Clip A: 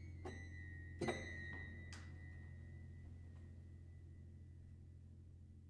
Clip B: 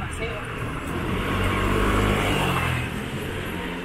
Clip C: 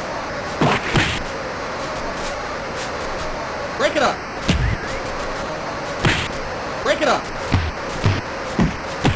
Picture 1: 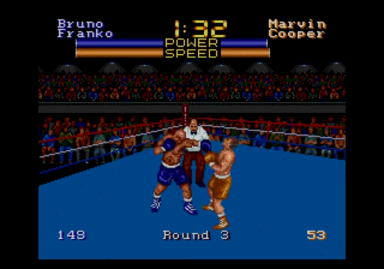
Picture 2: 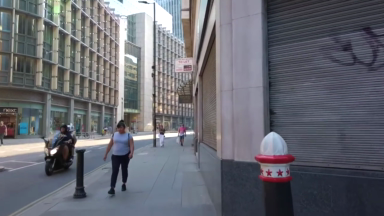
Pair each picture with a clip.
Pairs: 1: C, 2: B